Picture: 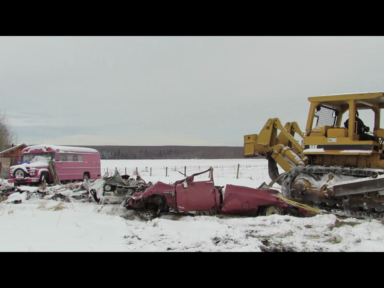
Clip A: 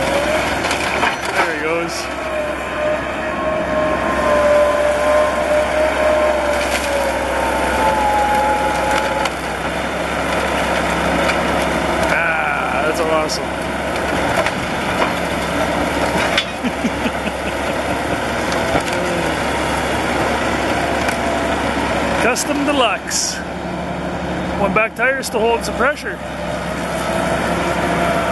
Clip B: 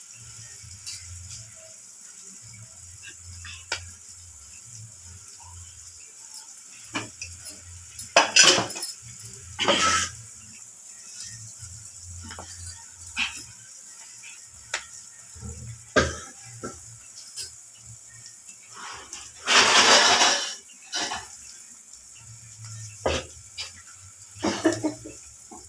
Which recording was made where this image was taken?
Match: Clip A